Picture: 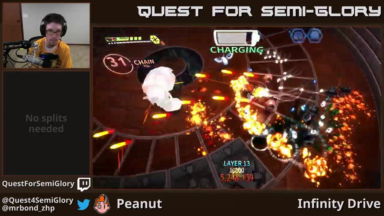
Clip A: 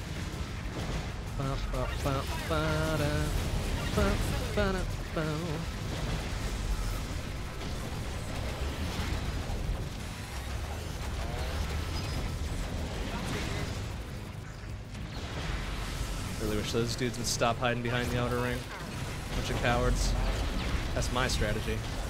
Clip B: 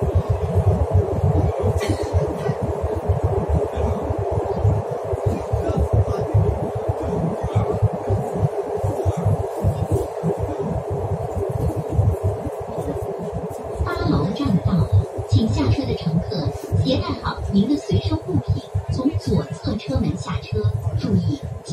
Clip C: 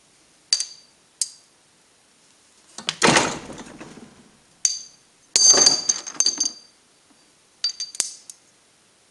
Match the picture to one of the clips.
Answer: A